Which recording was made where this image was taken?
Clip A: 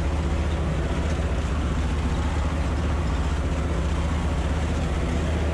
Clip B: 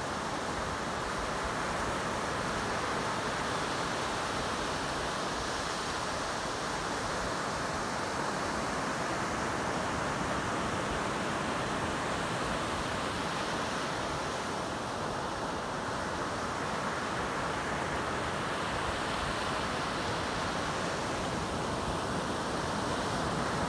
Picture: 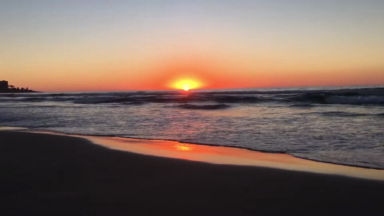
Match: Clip B